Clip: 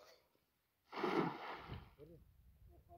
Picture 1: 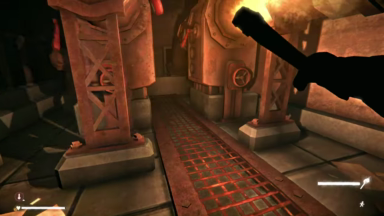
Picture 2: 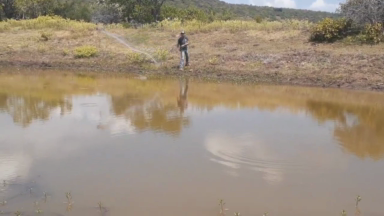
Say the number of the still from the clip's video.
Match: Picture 2